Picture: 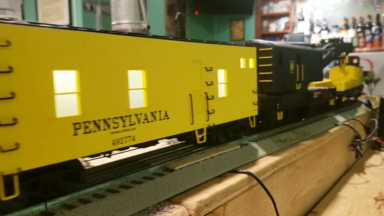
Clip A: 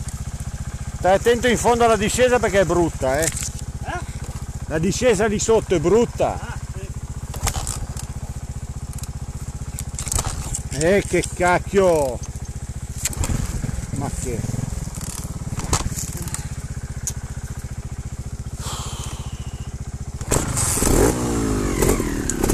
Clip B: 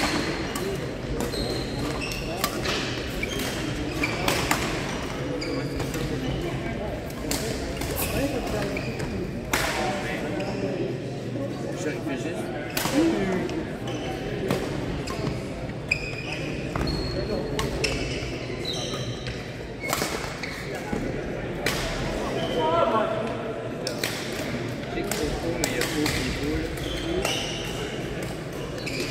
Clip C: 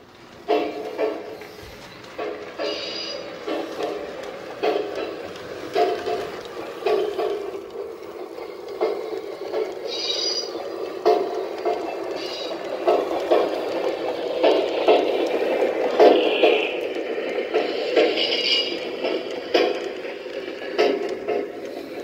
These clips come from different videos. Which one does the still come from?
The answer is C